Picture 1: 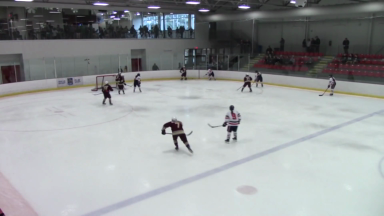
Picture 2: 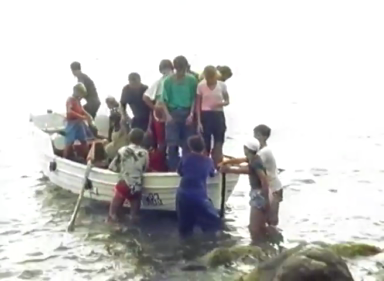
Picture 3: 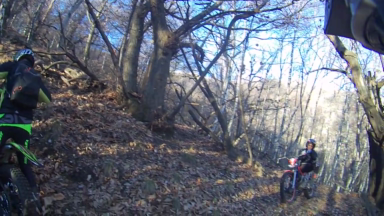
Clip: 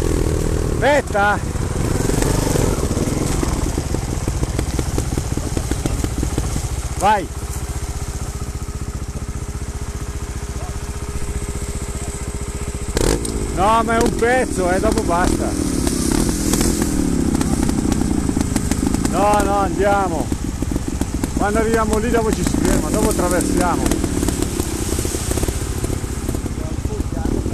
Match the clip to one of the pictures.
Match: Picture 3